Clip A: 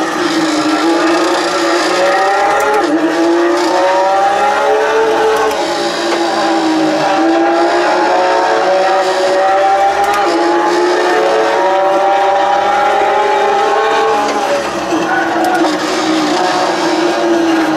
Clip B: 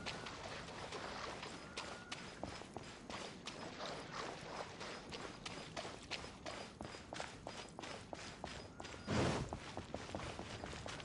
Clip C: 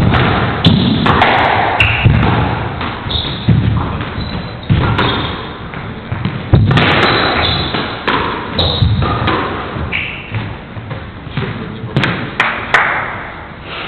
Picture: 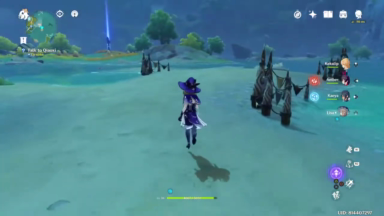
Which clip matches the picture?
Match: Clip B